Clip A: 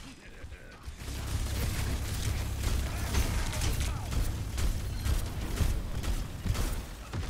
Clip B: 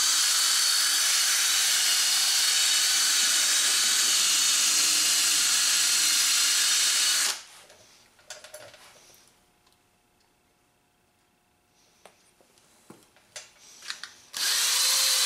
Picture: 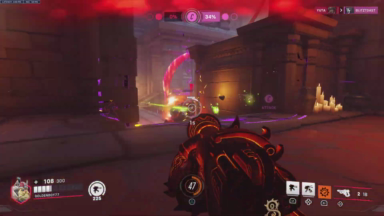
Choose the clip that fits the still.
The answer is A